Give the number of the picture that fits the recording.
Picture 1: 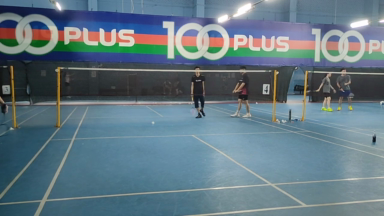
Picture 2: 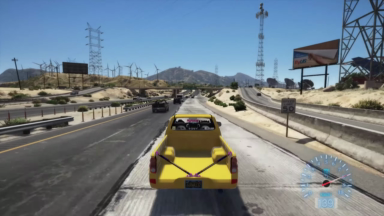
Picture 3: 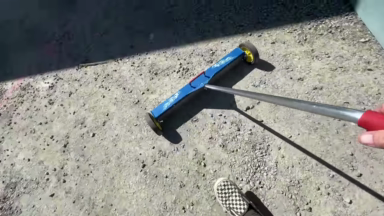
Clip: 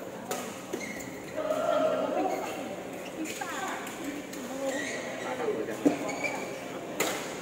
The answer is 1